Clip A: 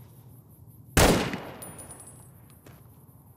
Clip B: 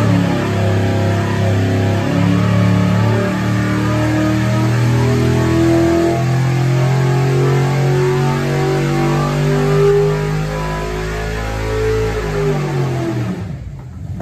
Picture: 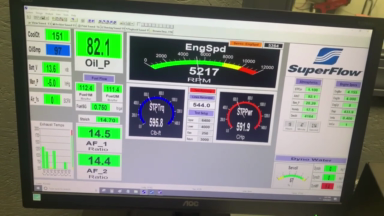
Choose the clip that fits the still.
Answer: B